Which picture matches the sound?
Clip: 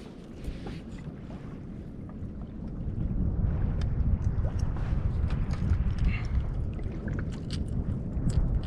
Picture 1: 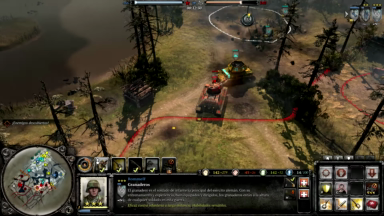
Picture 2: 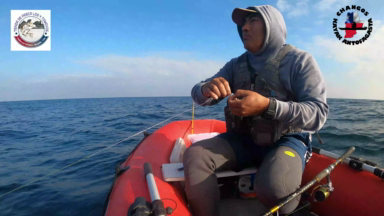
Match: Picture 2